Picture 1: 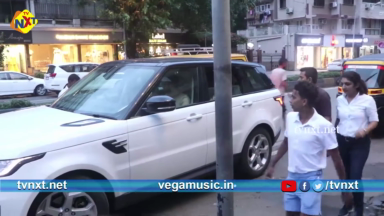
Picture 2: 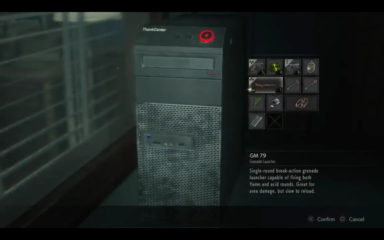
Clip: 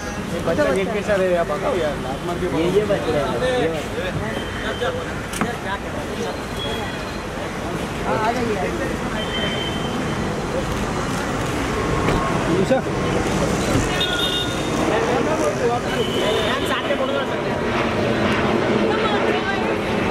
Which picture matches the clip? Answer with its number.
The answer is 1